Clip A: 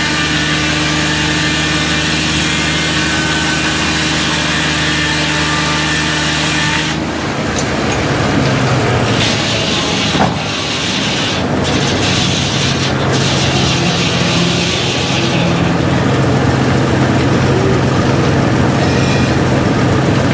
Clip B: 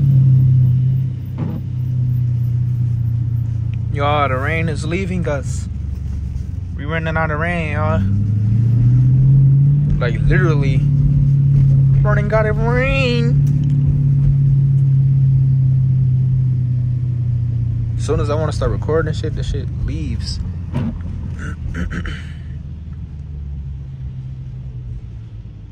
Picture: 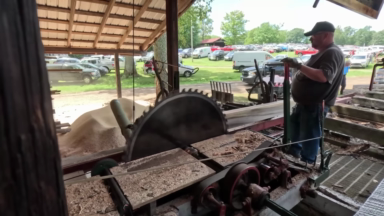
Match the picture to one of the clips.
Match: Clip A